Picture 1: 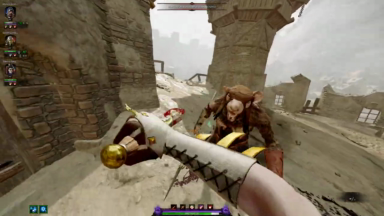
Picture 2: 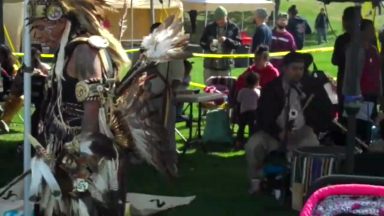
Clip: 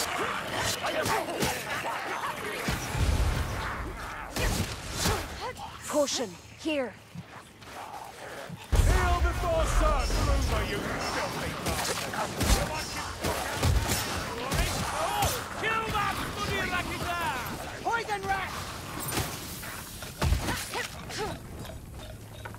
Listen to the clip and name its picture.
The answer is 1